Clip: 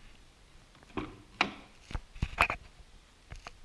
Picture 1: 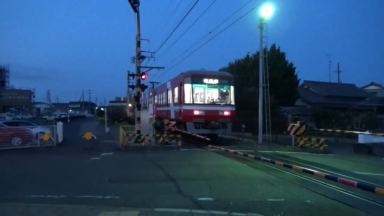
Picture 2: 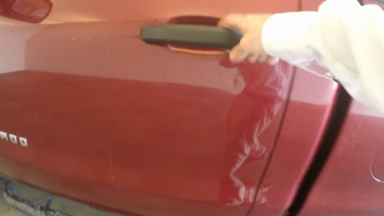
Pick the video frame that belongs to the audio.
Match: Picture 2